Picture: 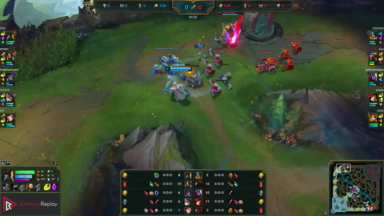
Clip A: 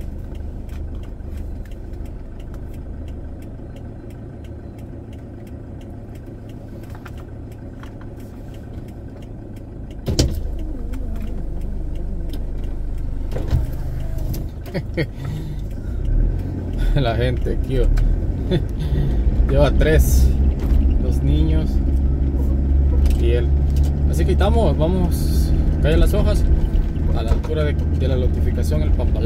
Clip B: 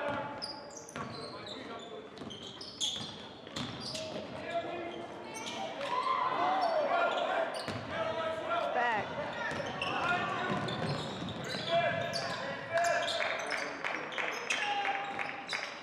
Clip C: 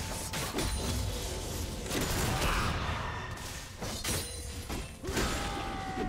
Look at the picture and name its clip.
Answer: C